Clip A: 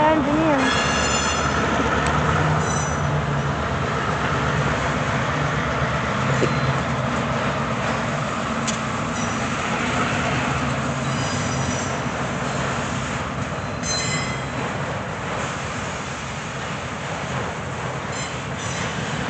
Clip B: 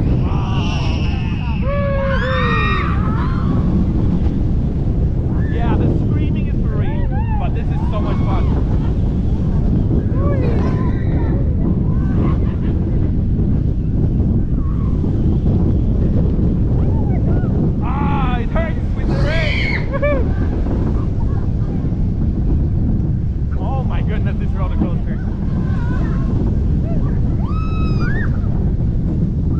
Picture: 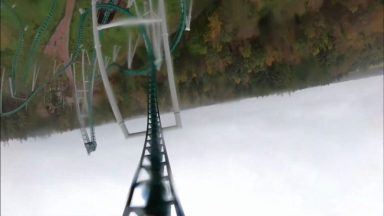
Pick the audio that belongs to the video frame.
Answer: B